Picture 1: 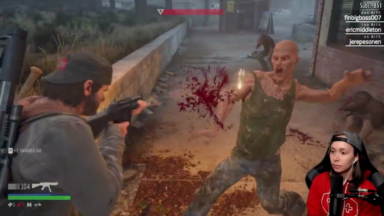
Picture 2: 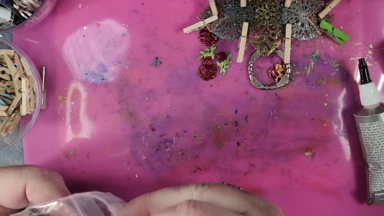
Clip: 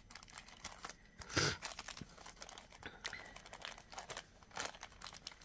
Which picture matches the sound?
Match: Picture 2